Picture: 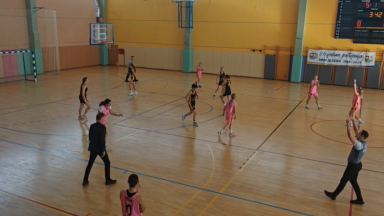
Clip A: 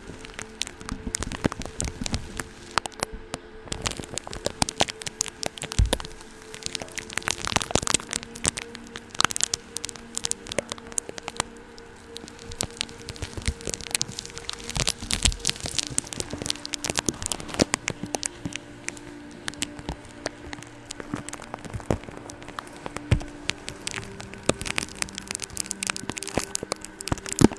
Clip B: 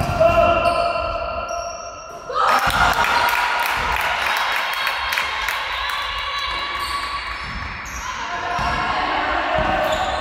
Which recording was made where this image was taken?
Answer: B